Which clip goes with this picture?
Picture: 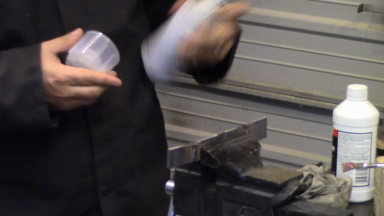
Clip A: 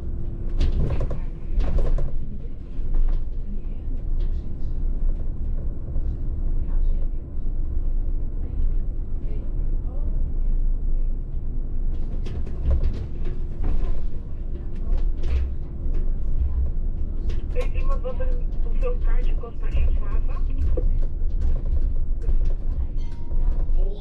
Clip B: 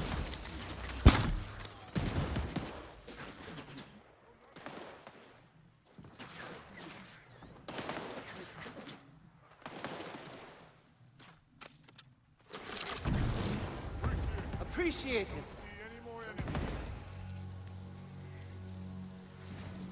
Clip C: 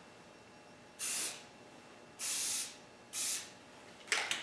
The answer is C